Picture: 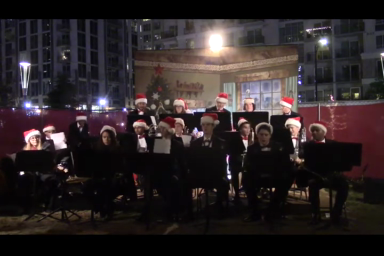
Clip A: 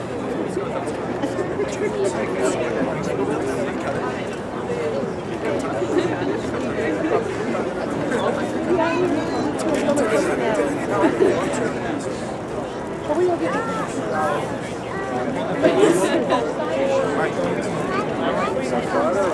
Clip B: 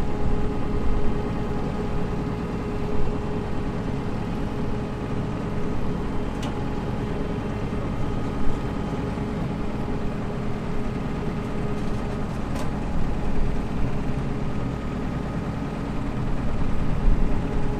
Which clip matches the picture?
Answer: A